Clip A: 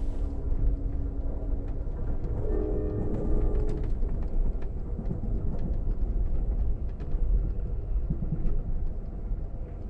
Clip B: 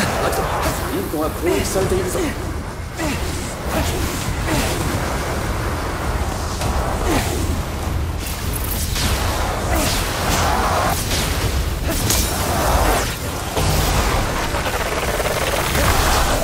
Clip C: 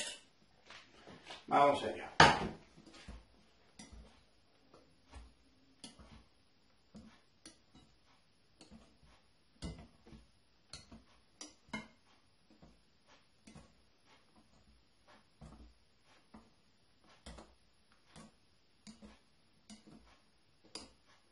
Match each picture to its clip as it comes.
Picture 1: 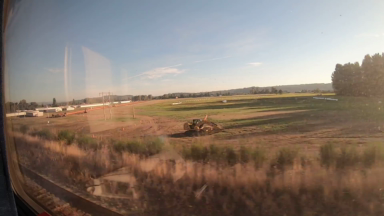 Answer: A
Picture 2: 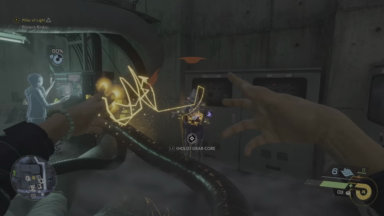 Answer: B